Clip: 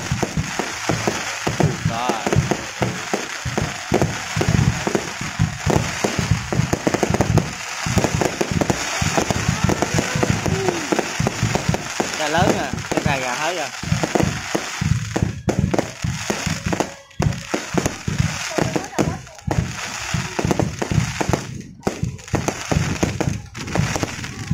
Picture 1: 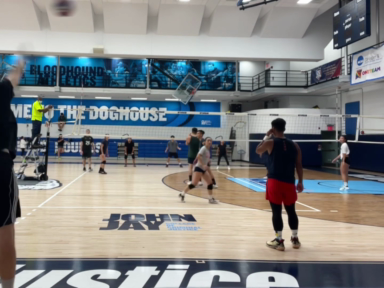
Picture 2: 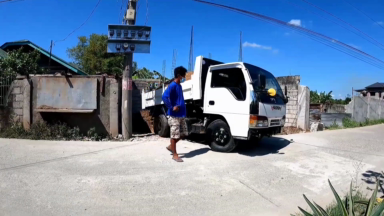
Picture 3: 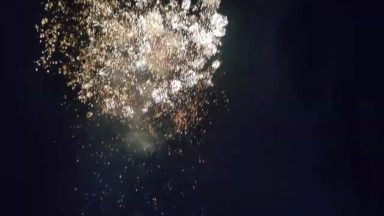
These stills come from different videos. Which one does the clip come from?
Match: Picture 3